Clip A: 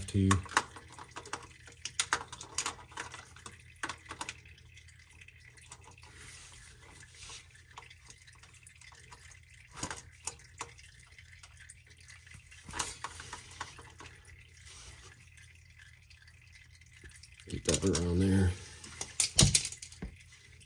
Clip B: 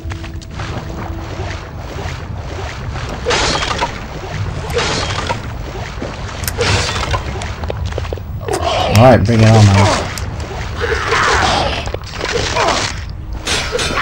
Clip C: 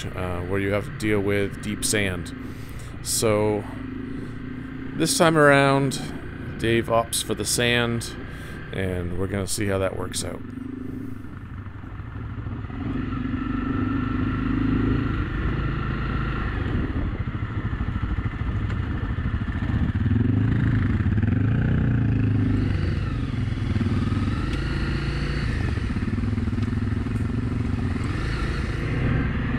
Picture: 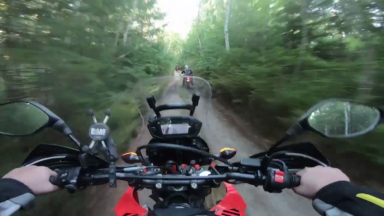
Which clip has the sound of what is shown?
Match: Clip C